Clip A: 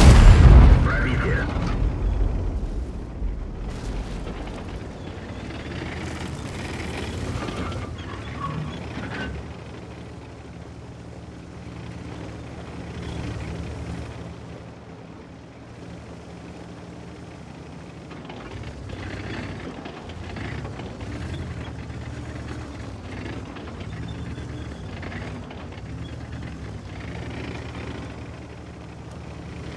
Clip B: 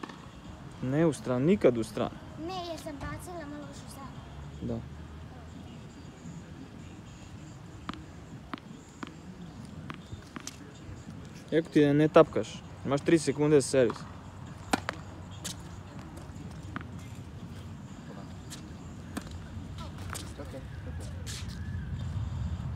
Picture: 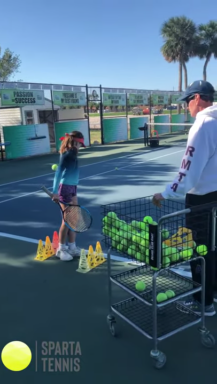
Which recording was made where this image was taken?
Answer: B